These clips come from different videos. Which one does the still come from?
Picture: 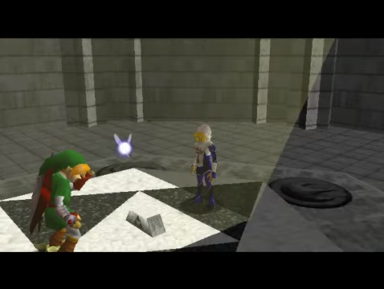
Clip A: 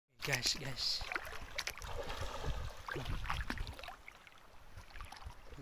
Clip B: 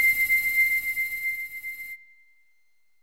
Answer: B